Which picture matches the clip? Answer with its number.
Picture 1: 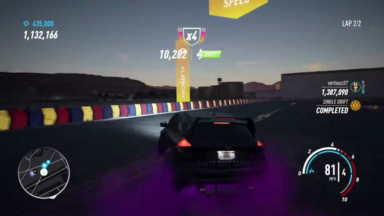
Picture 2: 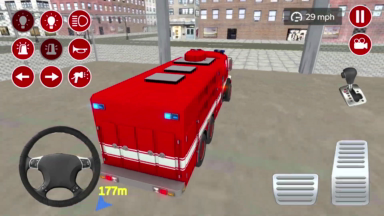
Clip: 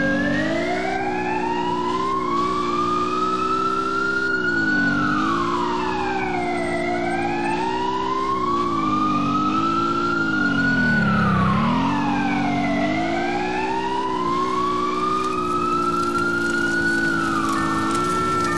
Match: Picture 2